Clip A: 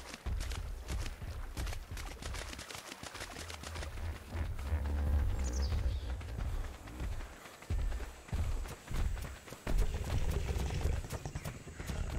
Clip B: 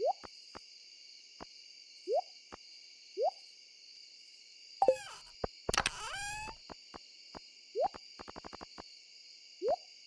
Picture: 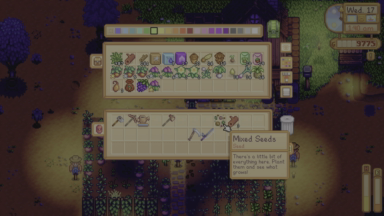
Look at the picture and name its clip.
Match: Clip B